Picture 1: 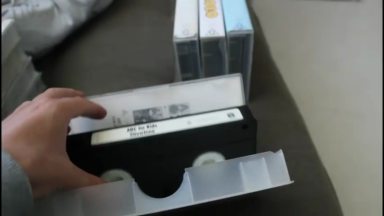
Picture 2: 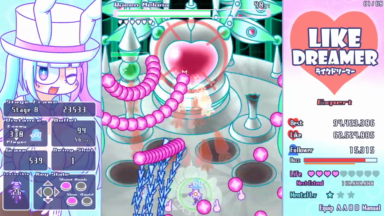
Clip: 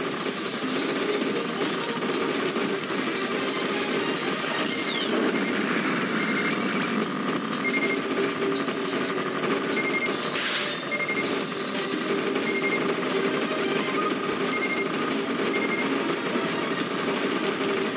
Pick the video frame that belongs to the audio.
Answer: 2